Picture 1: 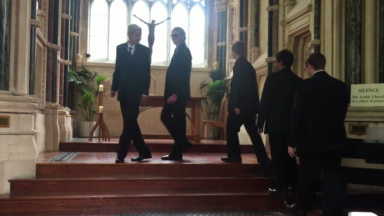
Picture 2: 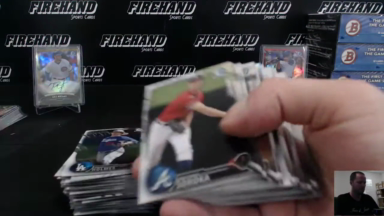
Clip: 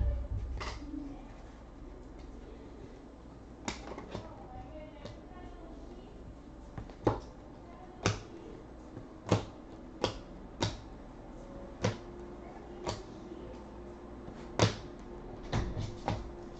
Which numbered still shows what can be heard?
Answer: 2